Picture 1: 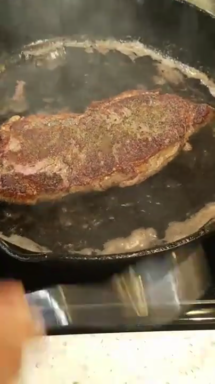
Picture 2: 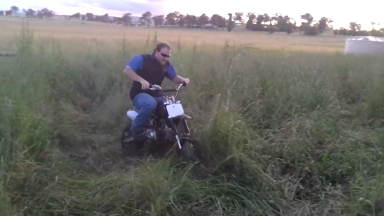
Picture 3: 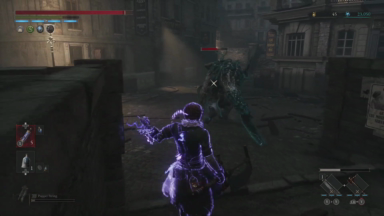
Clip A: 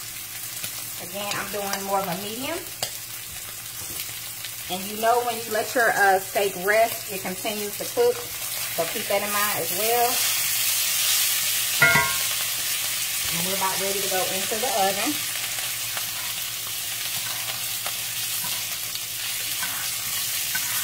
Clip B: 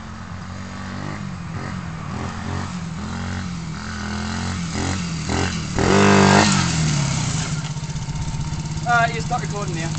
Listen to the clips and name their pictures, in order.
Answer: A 1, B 2